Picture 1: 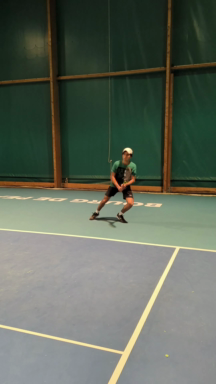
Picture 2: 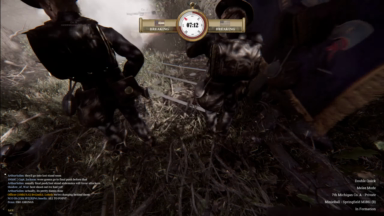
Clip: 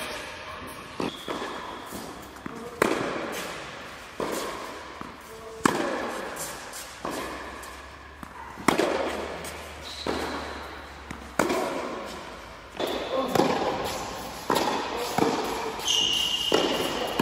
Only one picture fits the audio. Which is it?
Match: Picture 1